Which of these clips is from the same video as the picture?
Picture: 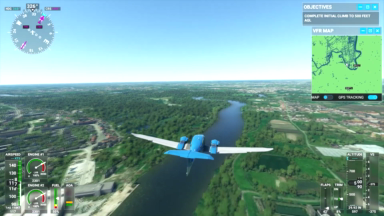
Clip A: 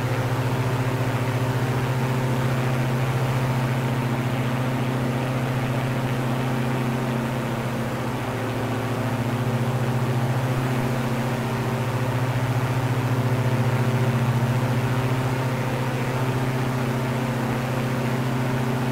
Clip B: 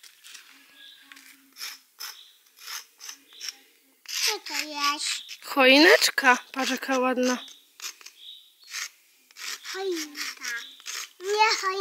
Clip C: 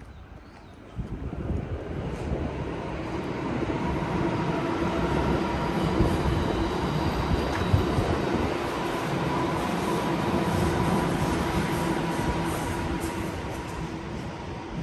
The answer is A